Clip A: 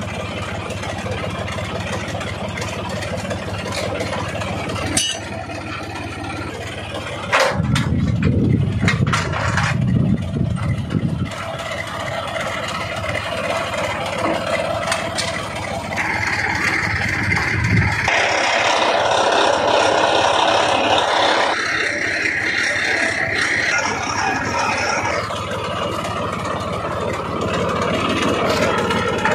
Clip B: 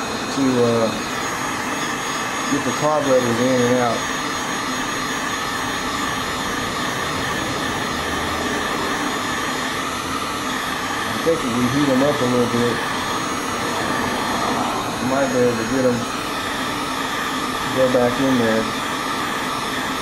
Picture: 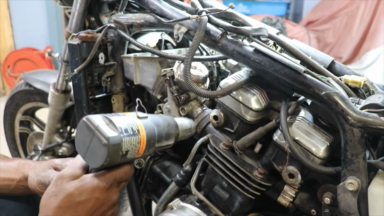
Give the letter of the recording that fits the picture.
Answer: B